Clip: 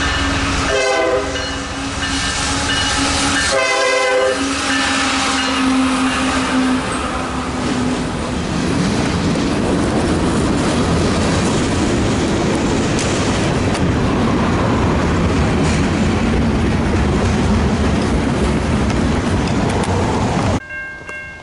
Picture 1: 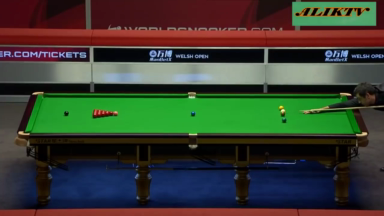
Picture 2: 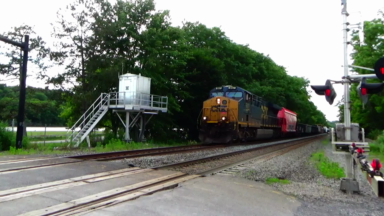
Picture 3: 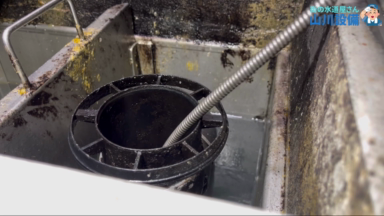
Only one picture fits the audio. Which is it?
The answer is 2